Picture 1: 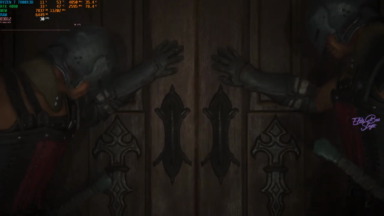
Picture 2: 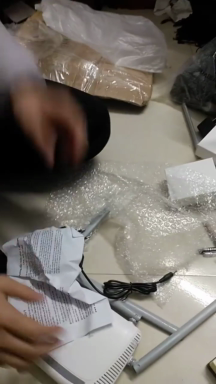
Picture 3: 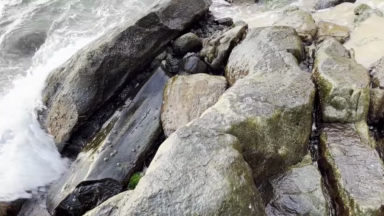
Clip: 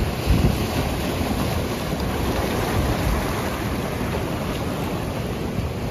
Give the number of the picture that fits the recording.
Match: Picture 3